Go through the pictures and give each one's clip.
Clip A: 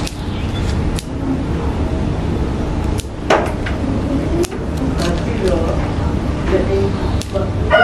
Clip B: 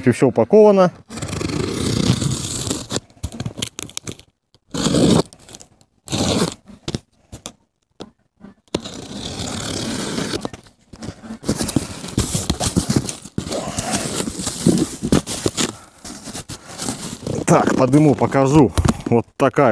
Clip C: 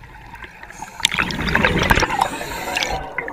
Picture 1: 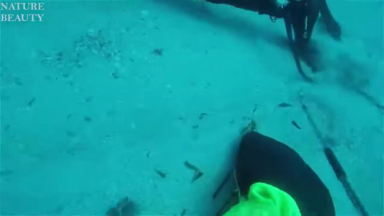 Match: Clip C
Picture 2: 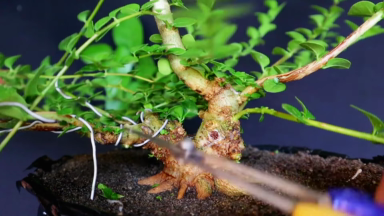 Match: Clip A